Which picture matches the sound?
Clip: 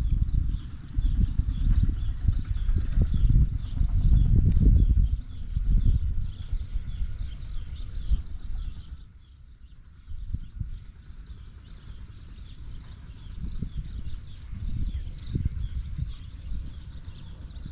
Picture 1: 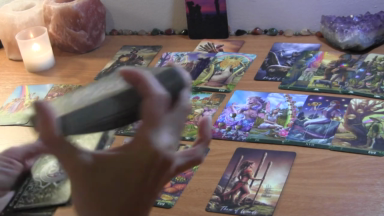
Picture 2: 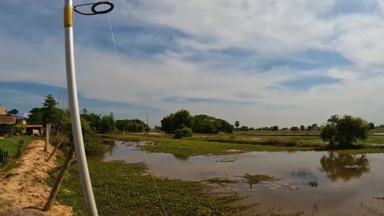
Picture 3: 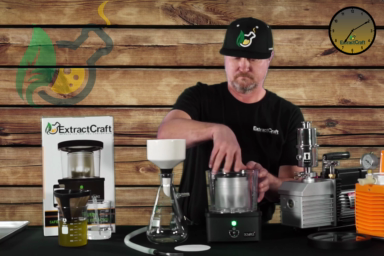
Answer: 2